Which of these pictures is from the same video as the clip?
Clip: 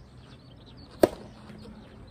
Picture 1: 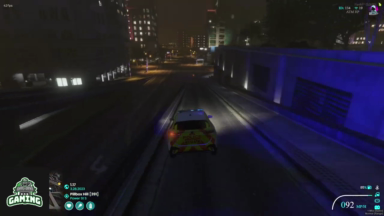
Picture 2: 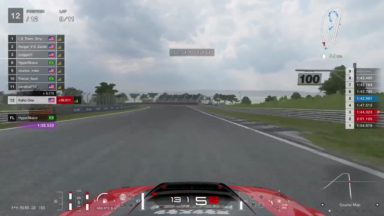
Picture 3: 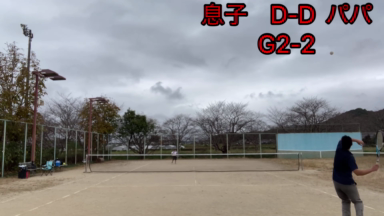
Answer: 3